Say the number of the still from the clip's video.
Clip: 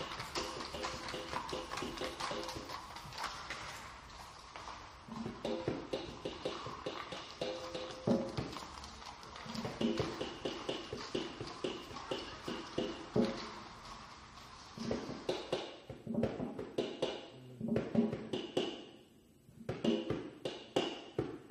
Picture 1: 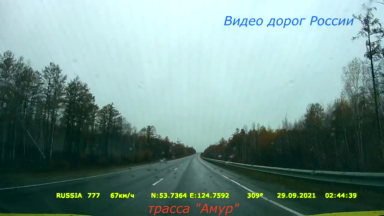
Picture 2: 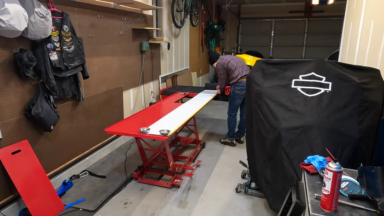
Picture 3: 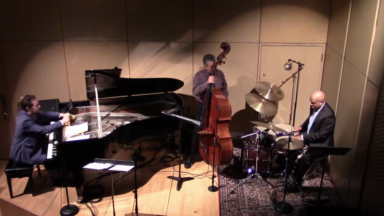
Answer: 3